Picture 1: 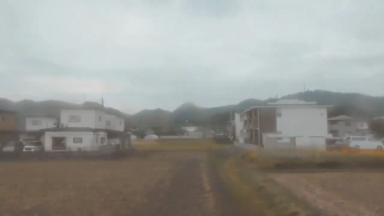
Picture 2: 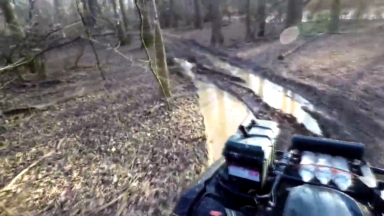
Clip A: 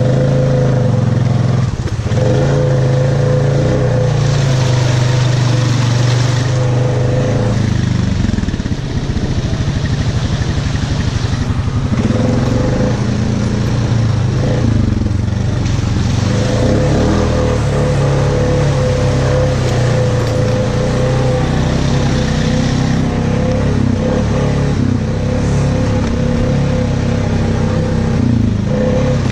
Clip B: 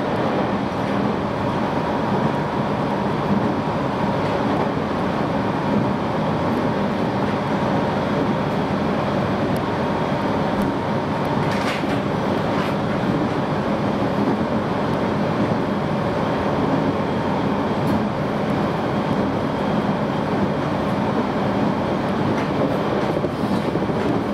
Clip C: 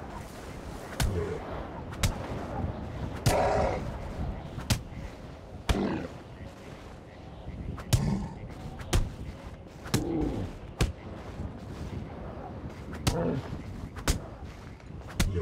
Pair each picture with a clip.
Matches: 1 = B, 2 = A